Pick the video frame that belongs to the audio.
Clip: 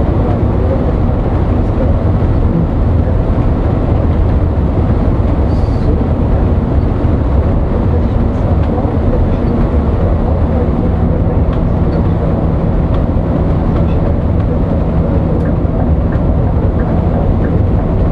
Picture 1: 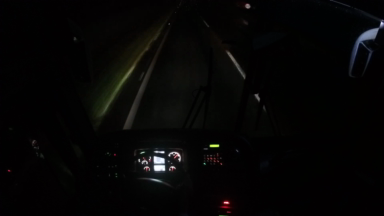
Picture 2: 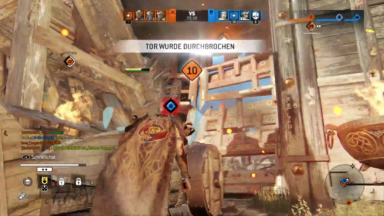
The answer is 1